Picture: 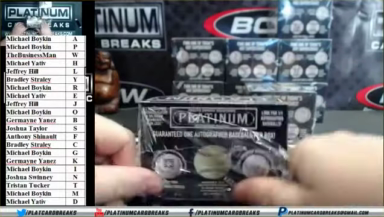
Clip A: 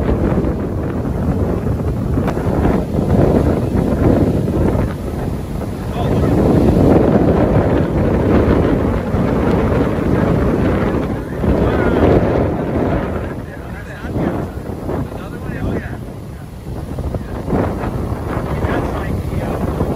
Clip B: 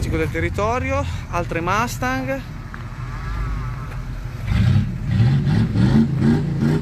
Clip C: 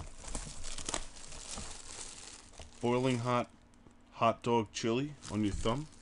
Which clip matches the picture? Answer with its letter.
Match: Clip C